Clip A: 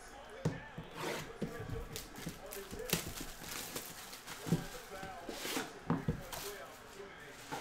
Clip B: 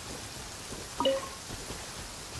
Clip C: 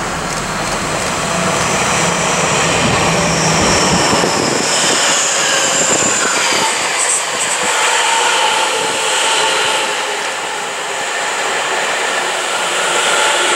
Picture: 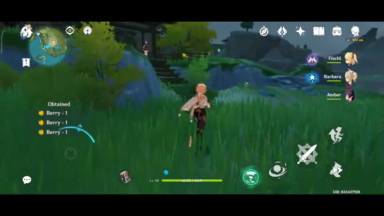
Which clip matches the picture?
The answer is B